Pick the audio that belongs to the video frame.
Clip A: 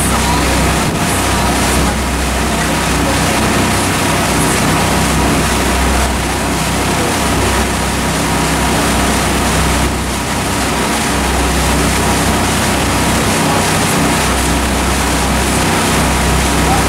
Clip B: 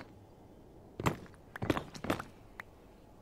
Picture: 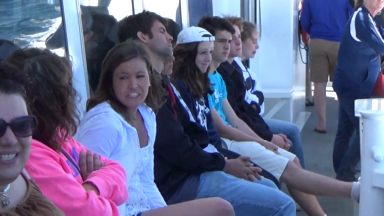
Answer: A